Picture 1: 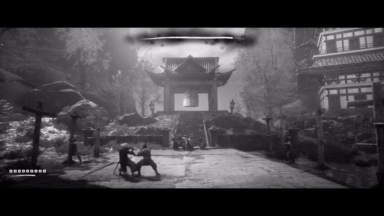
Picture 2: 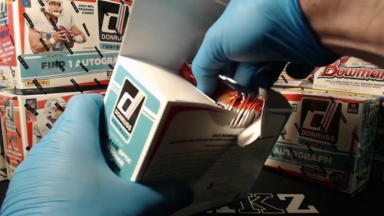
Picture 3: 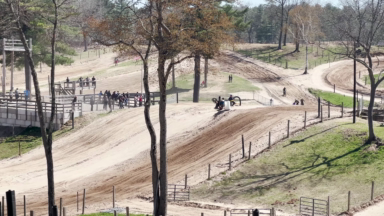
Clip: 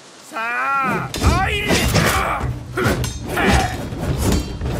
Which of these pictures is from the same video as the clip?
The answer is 1